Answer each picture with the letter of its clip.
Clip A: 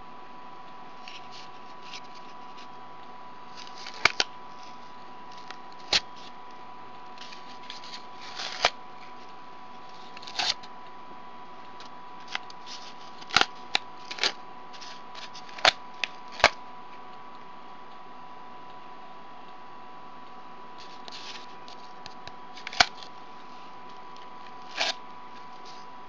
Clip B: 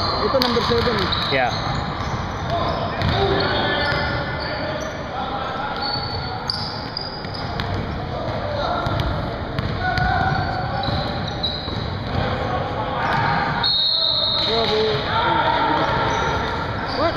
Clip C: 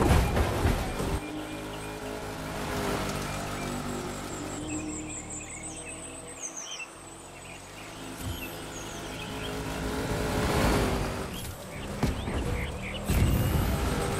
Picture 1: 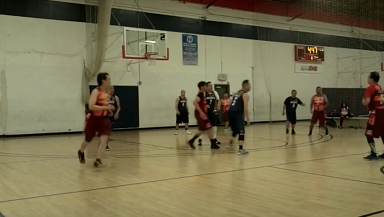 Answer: B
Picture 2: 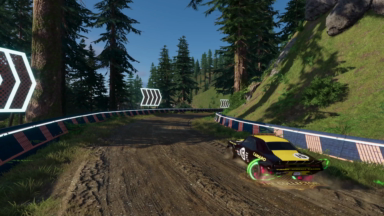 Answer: C